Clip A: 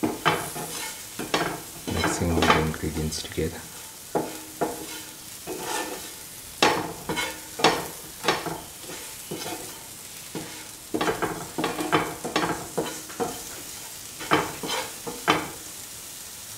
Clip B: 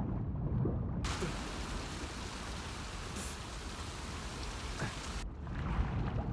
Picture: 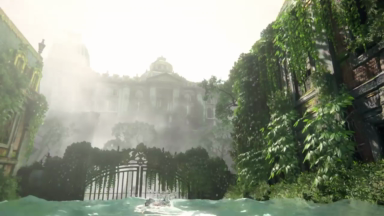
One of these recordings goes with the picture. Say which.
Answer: B